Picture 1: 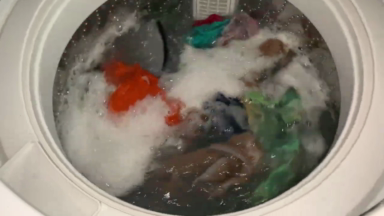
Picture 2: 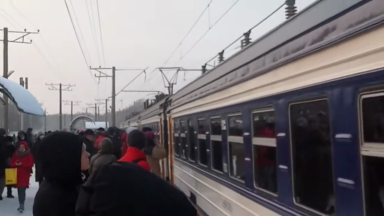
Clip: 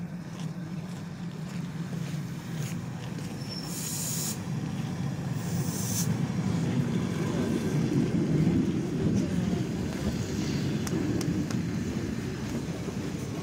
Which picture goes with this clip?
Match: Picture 2